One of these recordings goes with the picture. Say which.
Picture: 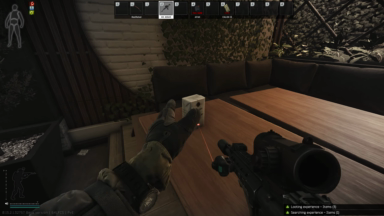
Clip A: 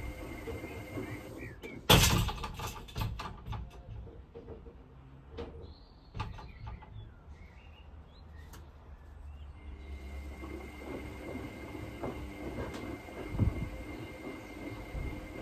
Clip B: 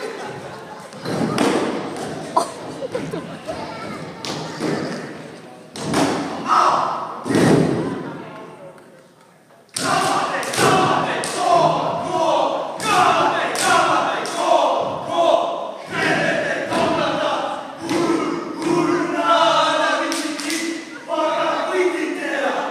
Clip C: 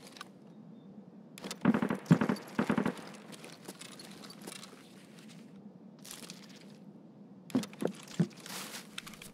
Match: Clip C